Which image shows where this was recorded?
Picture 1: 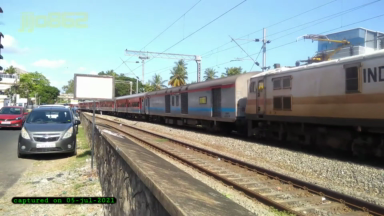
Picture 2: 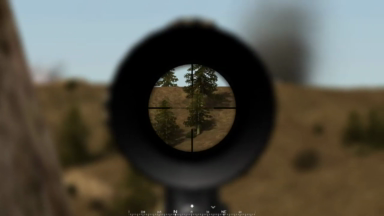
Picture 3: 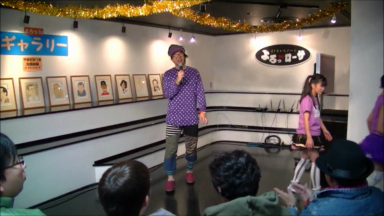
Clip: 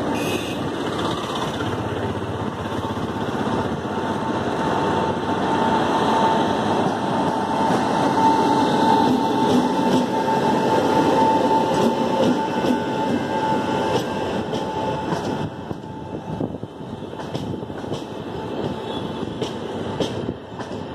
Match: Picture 1